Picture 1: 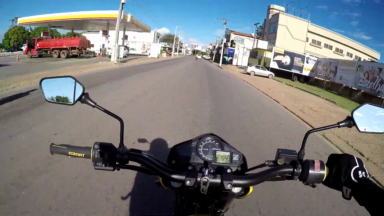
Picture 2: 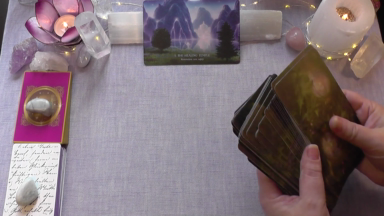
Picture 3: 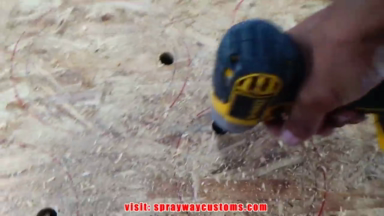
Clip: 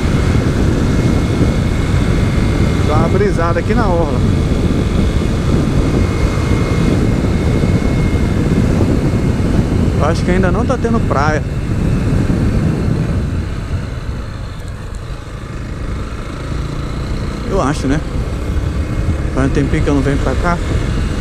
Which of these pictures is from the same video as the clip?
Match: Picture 1